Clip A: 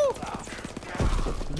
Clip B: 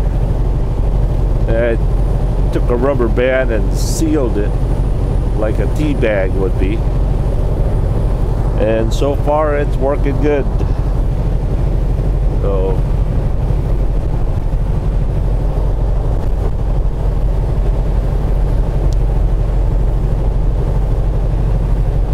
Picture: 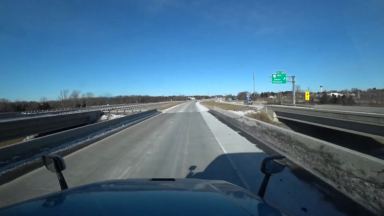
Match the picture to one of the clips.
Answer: B